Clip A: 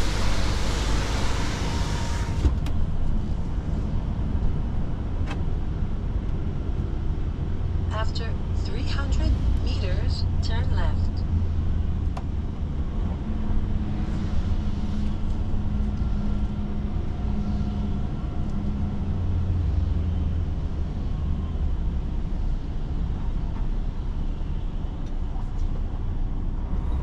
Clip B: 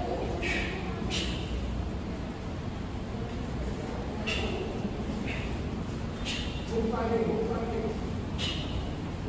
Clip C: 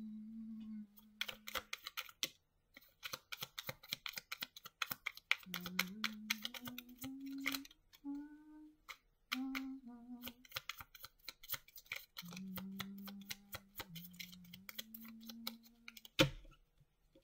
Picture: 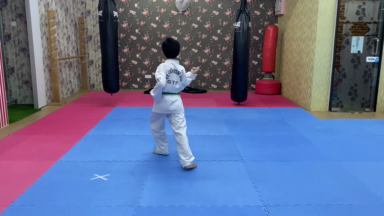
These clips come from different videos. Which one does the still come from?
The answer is B